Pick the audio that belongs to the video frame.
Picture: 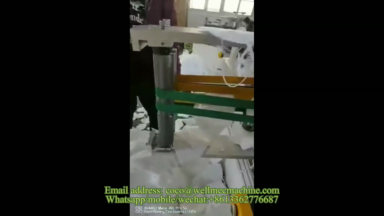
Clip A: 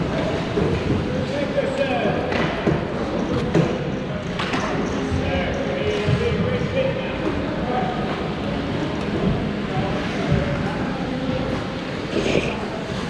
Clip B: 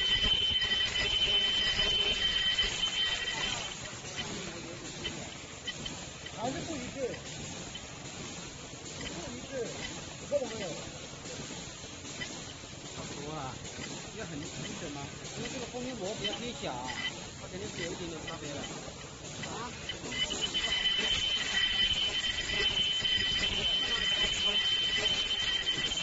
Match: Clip B